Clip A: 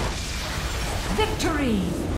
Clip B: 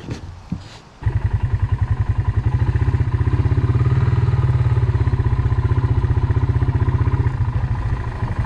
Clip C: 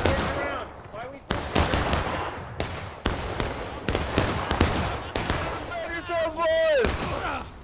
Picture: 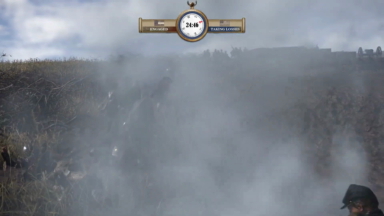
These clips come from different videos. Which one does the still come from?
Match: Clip C